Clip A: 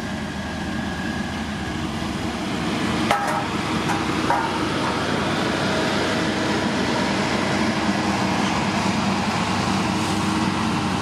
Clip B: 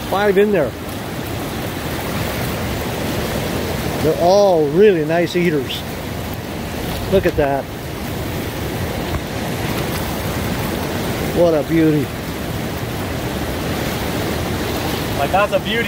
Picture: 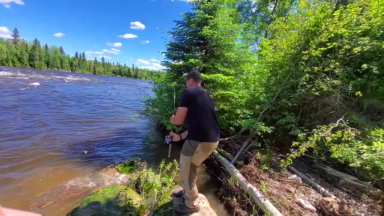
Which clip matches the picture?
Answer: B